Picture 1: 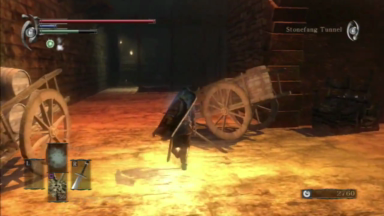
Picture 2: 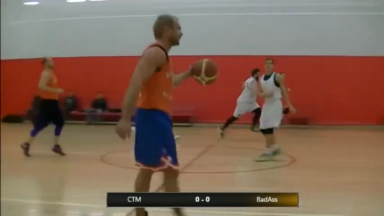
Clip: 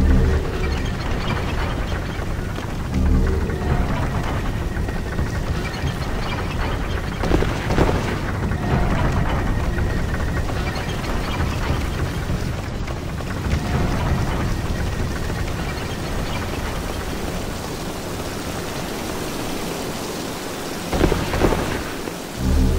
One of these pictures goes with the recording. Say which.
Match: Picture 1